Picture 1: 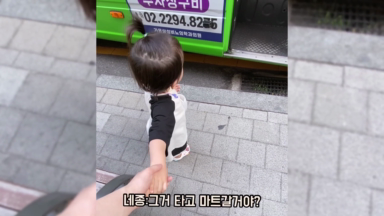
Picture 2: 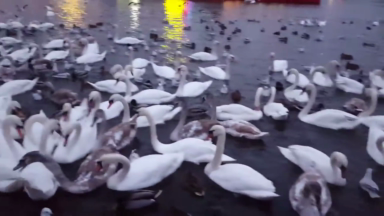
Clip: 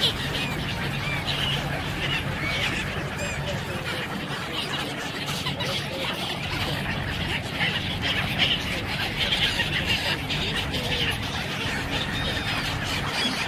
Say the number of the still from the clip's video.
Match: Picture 2